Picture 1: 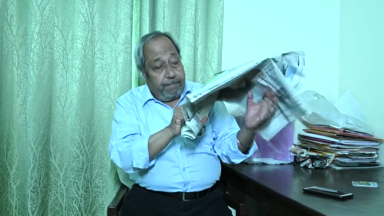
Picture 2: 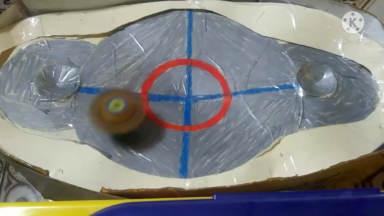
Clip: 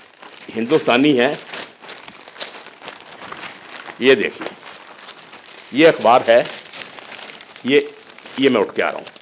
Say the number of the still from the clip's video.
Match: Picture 1